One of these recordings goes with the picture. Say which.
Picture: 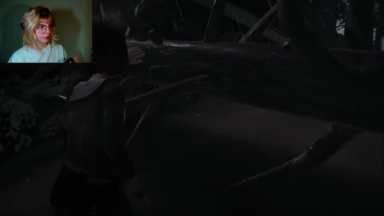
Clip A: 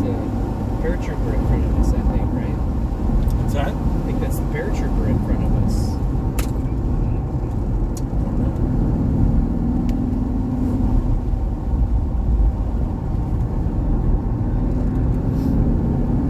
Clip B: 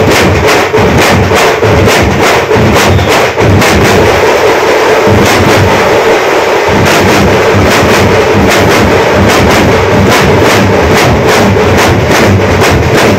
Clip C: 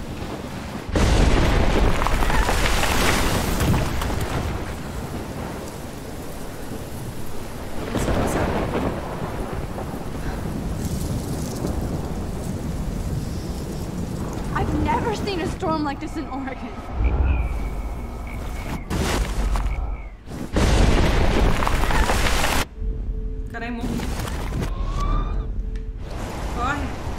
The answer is C